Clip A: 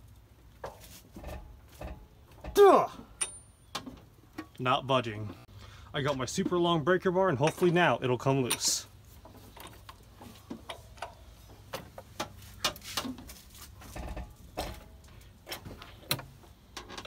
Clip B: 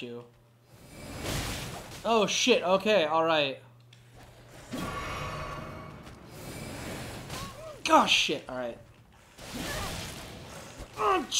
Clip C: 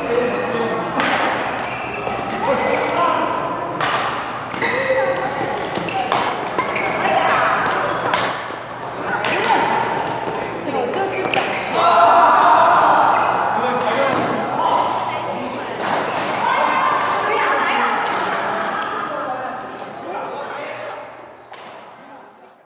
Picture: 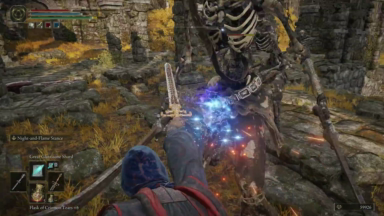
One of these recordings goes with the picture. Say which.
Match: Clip B